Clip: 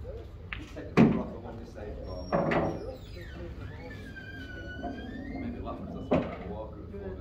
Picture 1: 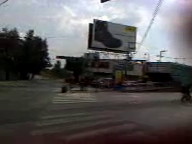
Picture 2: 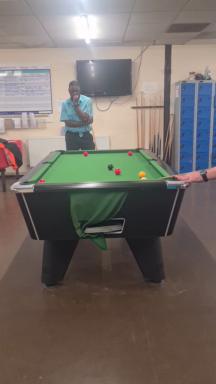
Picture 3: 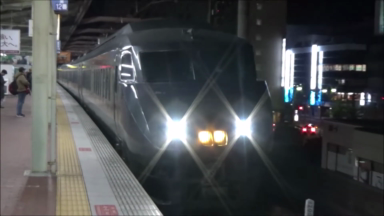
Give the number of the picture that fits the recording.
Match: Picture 2